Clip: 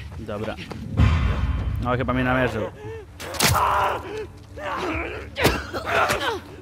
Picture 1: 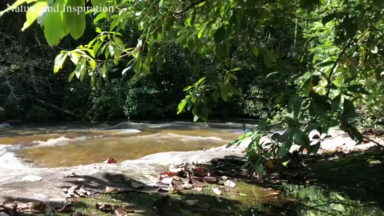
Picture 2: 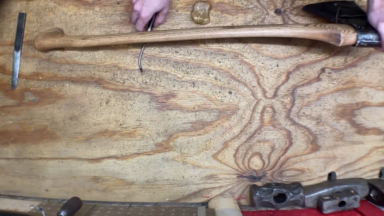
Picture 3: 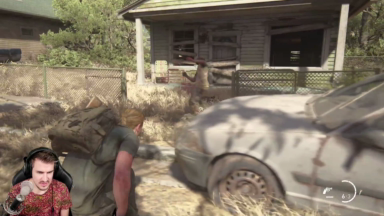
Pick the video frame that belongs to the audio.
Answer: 3